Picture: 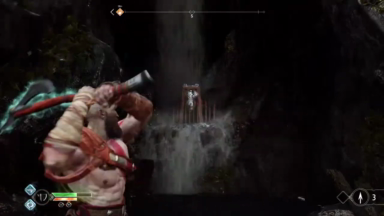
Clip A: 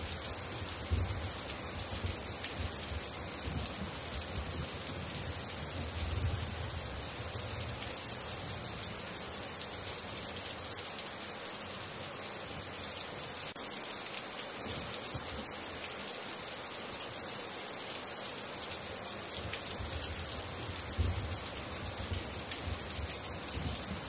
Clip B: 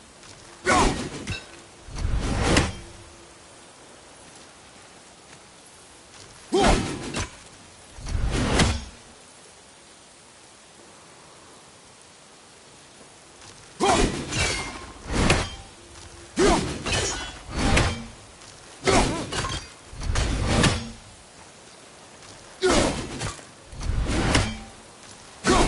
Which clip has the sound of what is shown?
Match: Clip B